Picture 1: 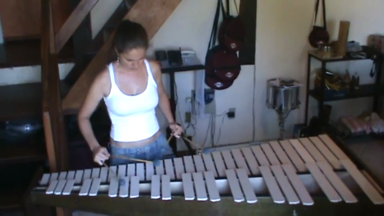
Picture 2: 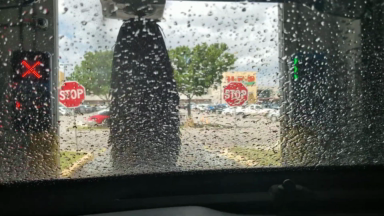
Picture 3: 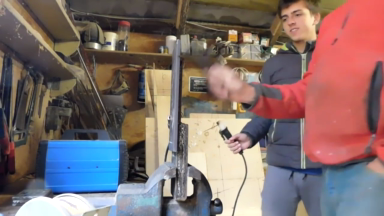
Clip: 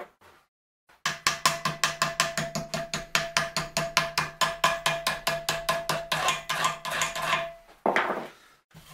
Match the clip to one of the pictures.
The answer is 3